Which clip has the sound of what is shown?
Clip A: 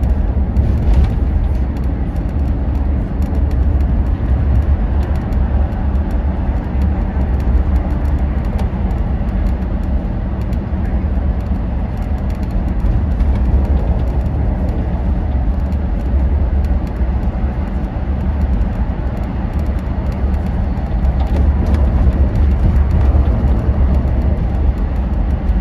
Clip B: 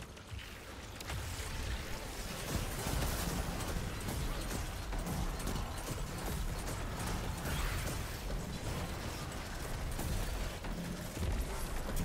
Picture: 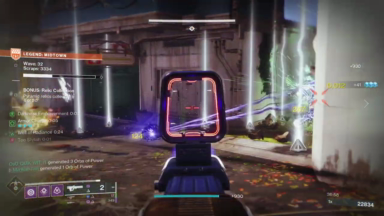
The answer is B